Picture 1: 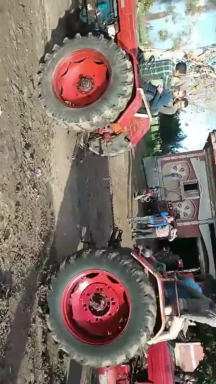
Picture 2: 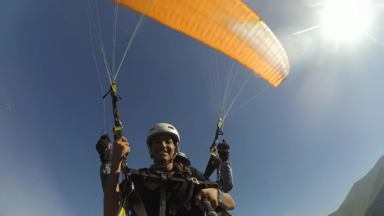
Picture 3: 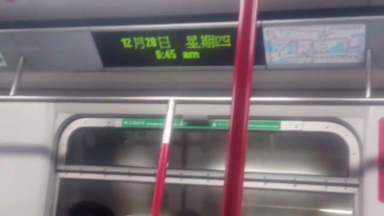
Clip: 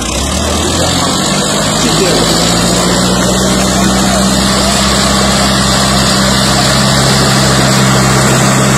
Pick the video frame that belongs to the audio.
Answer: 1